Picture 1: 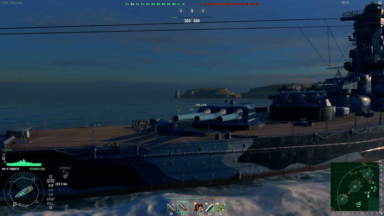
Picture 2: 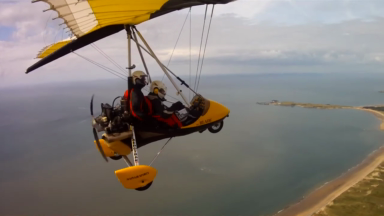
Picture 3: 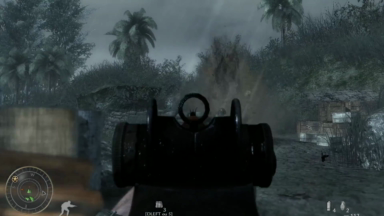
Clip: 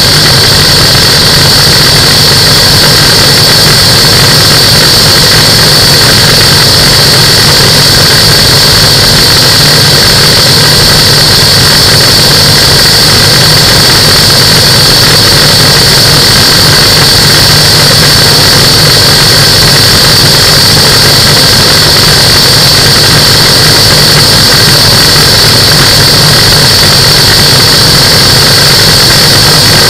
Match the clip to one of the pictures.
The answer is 2